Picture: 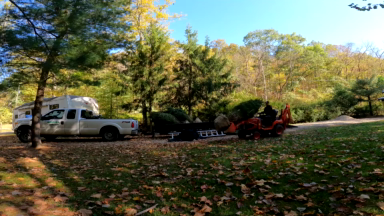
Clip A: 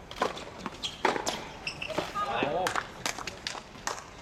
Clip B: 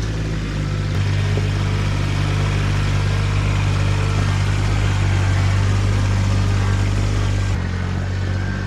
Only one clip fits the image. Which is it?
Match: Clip B